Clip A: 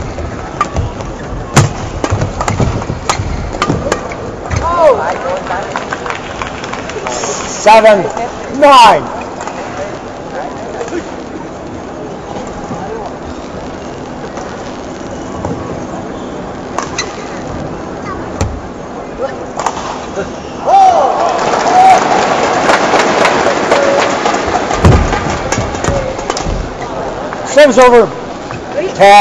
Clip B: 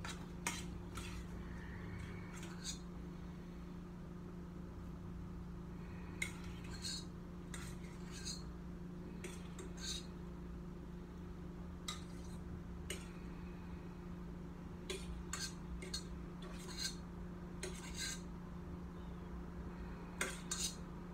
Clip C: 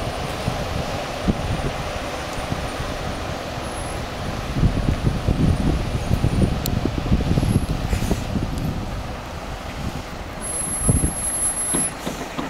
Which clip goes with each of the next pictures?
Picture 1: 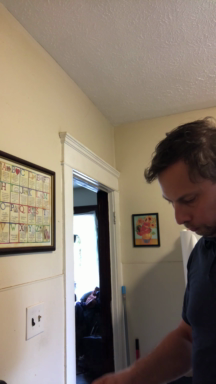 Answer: B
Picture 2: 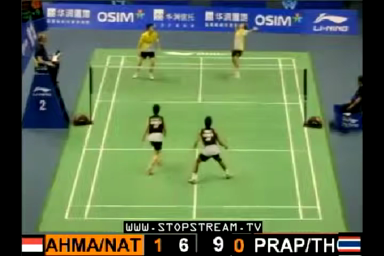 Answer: A